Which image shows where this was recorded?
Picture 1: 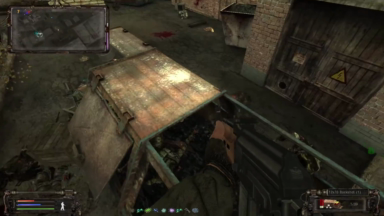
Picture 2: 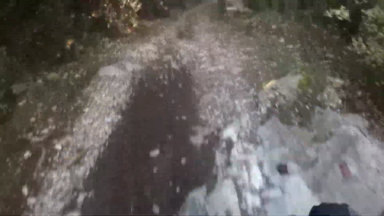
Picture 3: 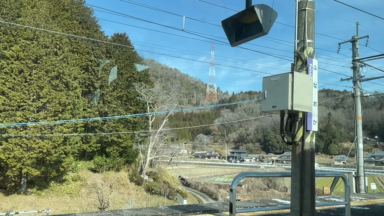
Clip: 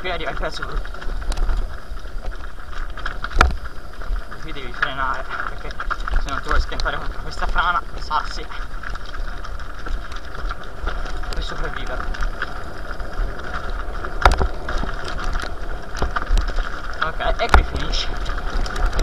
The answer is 2